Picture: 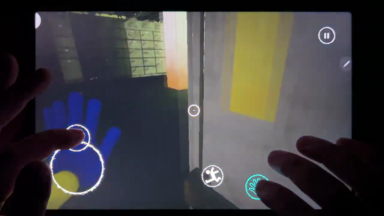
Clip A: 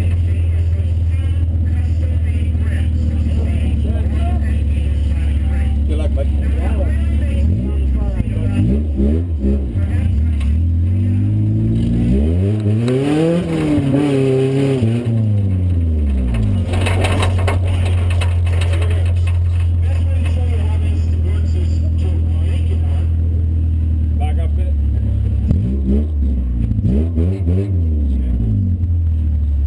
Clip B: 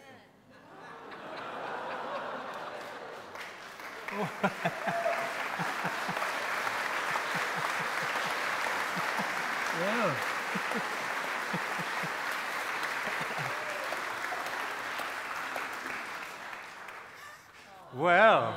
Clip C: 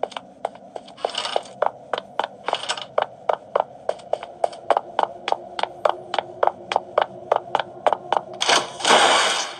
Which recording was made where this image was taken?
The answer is C